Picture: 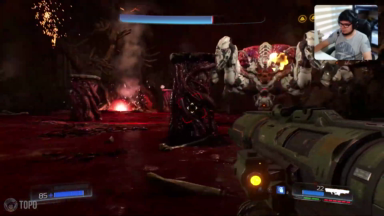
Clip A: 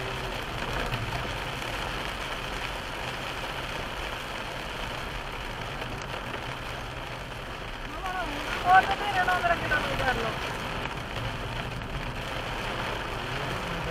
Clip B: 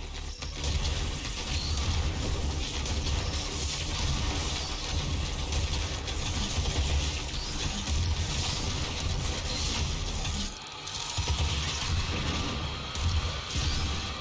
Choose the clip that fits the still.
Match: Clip B